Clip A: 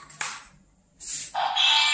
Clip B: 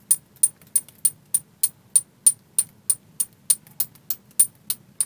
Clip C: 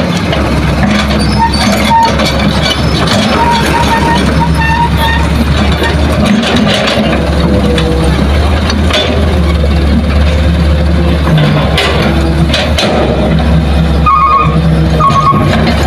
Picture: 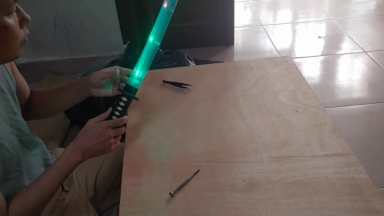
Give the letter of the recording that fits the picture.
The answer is A